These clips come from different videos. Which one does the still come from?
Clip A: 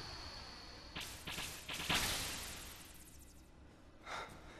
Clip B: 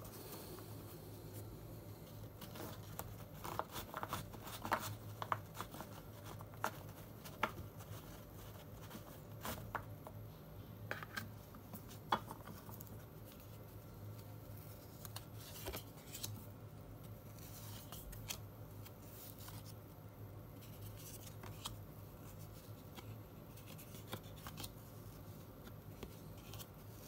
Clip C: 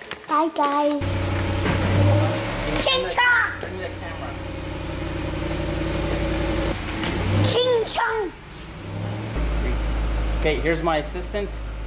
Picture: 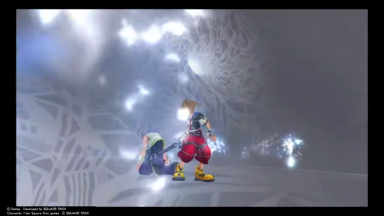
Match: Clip A